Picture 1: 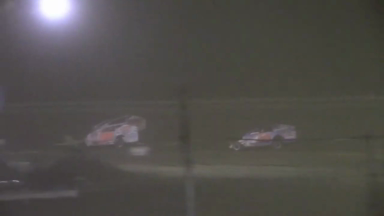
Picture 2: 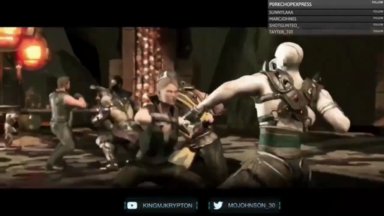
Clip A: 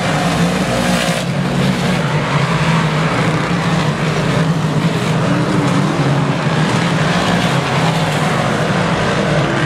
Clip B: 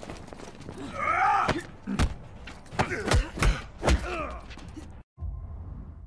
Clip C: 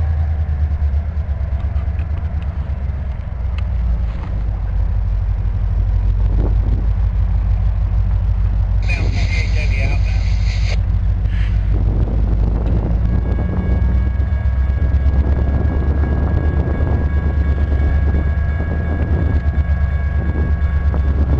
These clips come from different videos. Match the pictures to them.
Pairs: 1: A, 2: B